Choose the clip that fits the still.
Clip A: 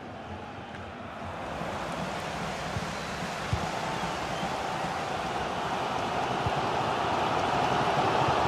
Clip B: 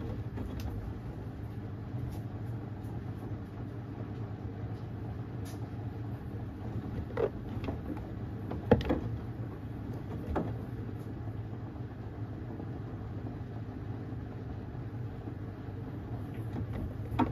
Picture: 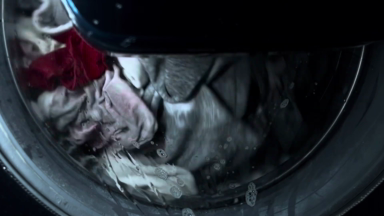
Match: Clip B